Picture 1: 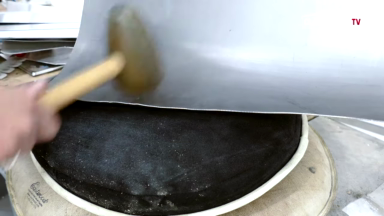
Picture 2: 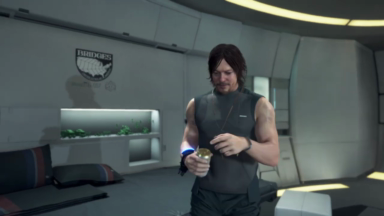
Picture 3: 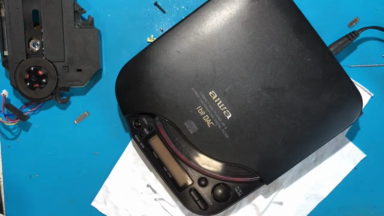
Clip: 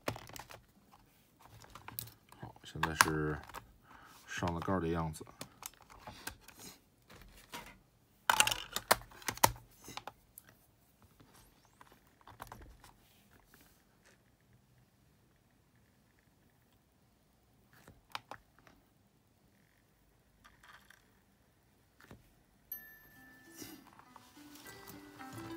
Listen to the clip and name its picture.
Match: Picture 3